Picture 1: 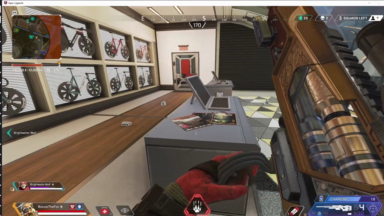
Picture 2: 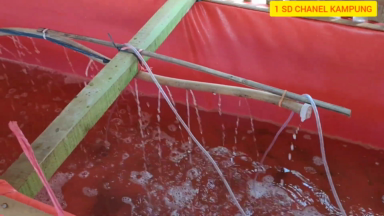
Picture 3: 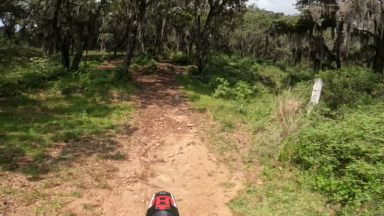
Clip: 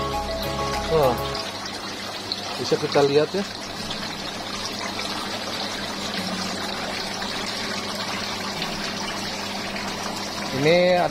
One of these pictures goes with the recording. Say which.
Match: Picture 2